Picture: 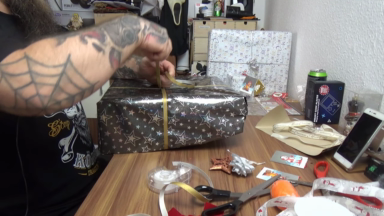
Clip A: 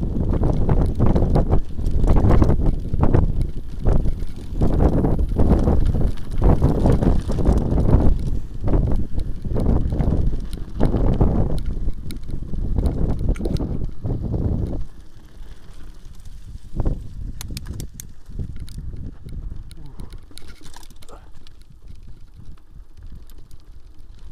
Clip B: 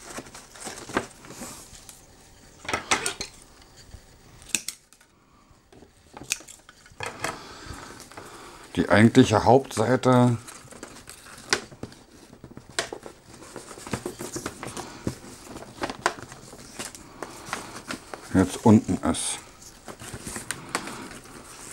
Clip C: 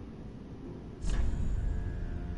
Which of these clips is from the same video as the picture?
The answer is B